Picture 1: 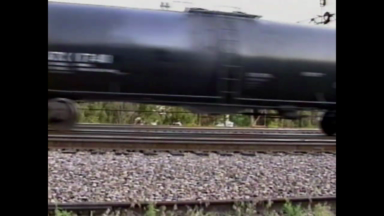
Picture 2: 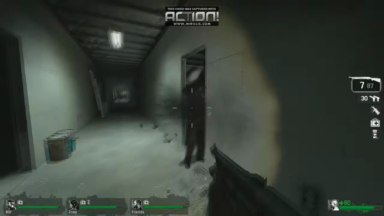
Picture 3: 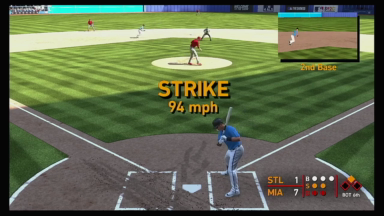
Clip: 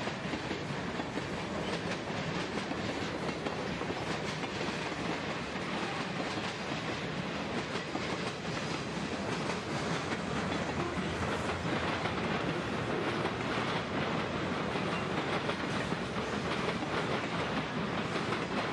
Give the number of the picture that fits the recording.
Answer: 1